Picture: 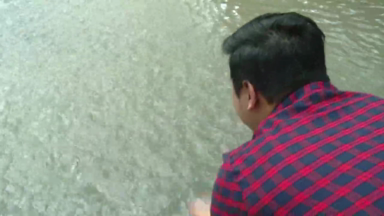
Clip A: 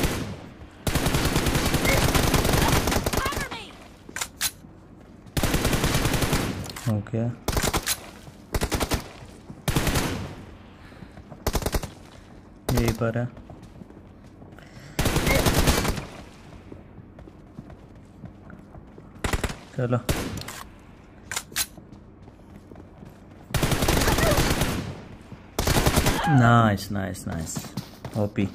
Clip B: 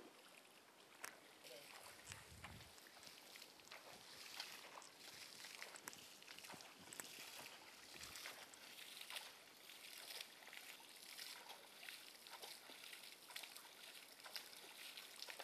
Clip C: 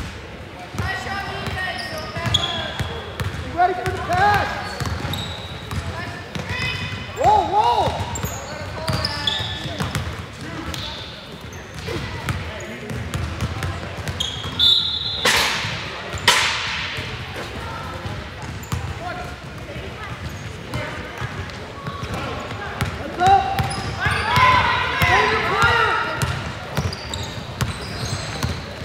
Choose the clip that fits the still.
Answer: B